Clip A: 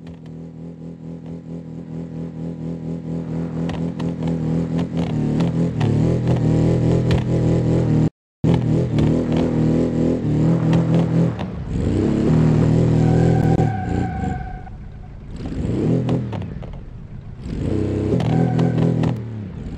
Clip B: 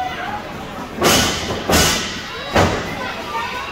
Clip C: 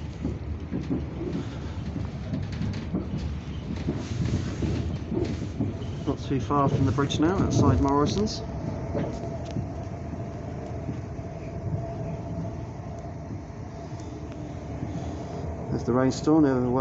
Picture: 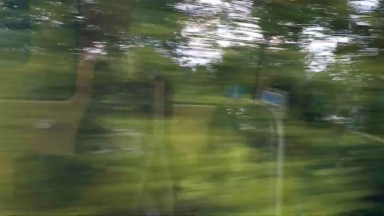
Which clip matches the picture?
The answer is C